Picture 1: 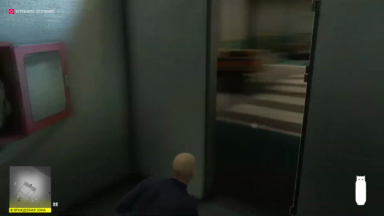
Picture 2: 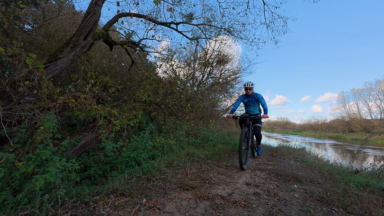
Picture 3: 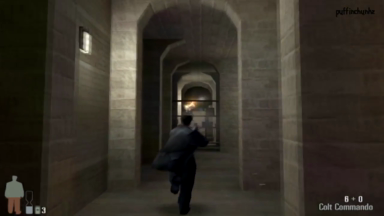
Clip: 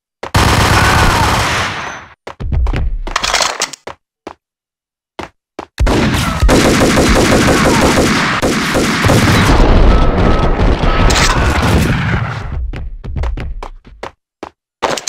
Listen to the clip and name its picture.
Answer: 3